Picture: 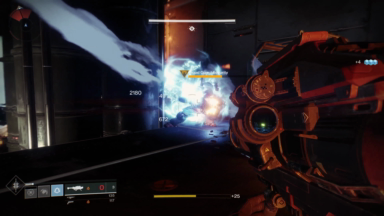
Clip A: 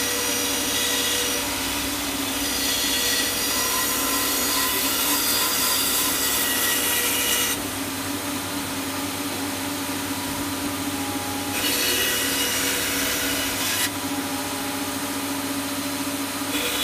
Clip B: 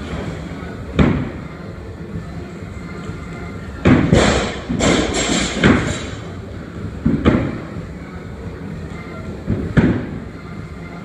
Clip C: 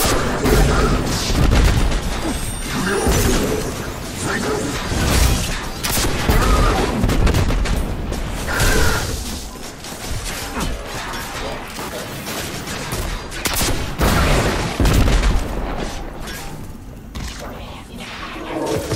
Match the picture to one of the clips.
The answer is C